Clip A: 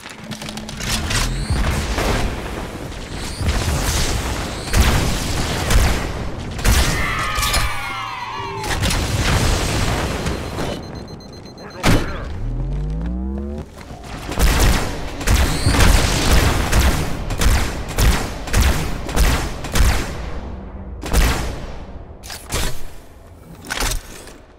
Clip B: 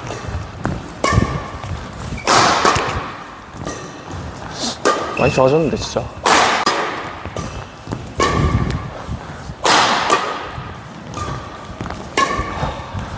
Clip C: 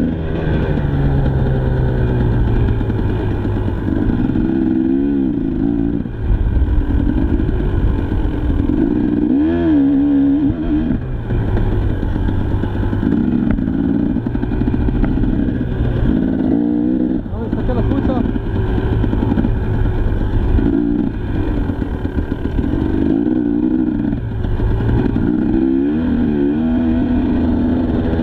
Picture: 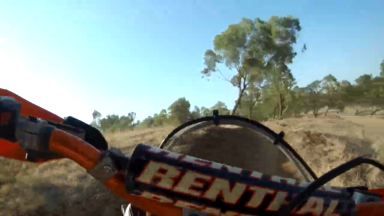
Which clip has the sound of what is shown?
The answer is C